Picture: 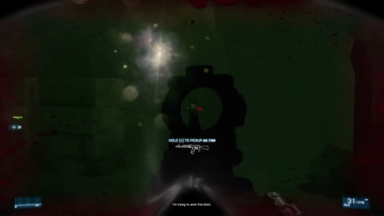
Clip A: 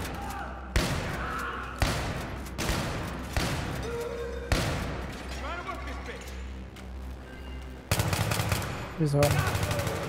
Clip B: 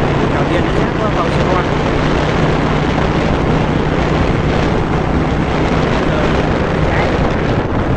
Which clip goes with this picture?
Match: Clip A